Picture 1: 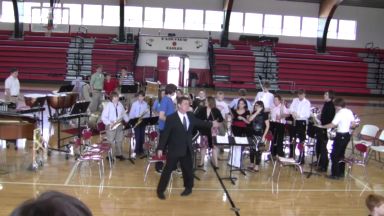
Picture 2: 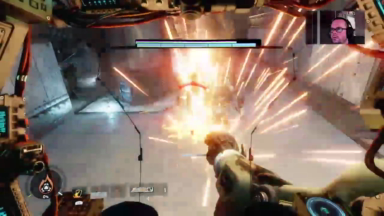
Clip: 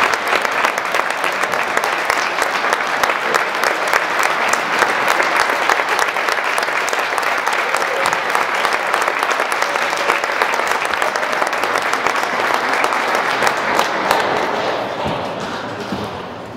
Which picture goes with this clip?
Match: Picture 1